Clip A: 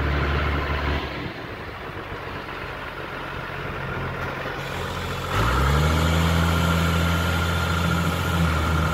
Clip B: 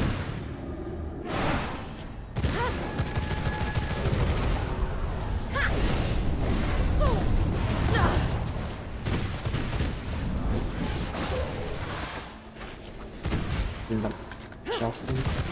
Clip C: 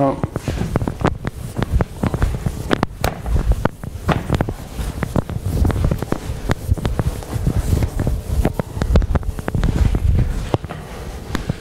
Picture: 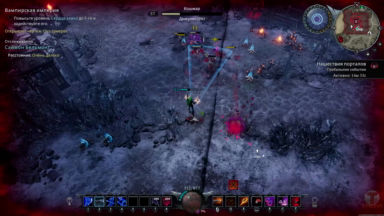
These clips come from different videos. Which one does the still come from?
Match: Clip B